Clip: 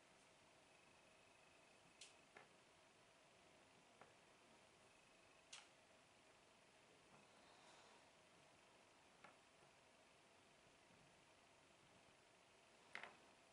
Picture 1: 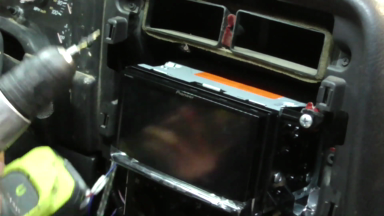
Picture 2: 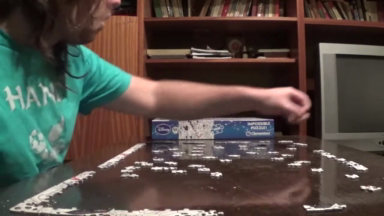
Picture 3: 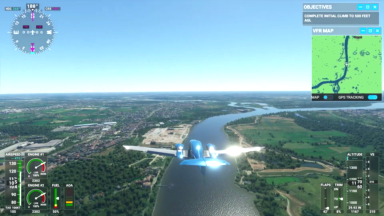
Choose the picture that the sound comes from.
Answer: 2